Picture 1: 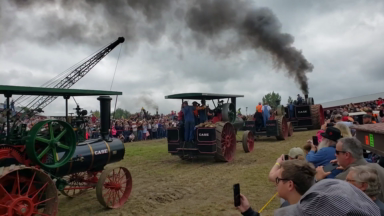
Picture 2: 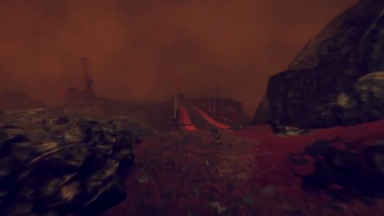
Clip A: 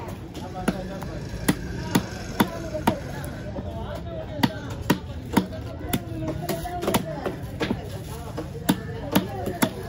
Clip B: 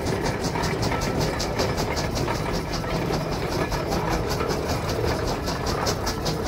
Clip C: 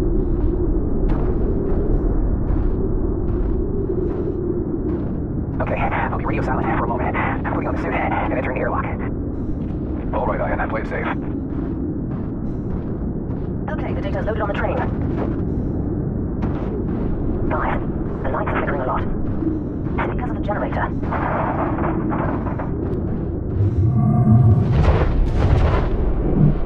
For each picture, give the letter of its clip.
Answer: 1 B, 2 C